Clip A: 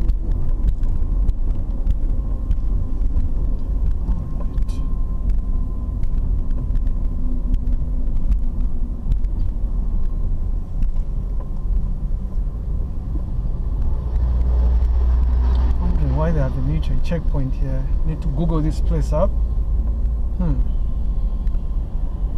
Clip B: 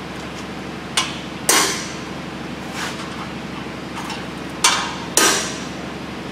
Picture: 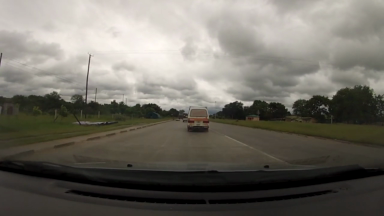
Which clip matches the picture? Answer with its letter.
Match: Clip A